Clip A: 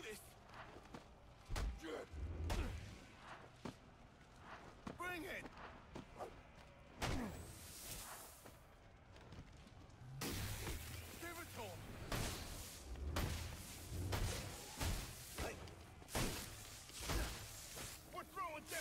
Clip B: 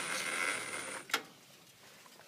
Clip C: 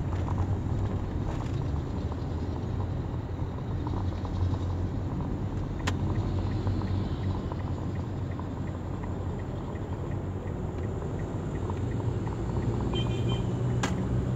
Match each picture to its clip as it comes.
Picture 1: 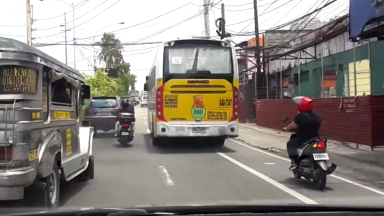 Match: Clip C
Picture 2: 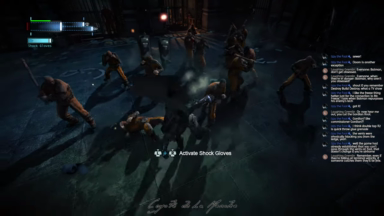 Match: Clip A